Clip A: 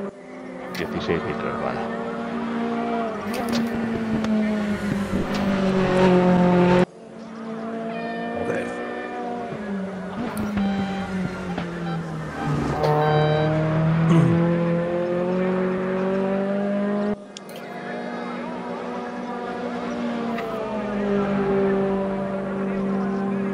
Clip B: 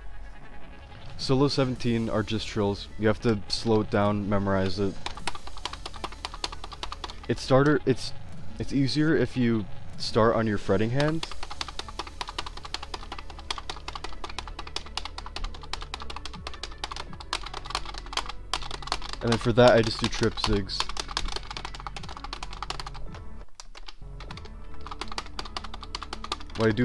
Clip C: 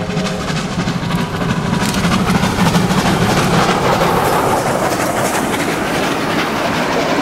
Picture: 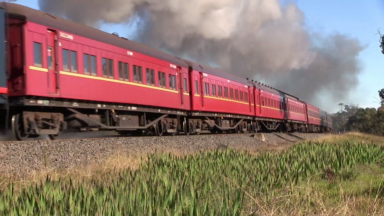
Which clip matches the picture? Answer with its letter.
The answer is C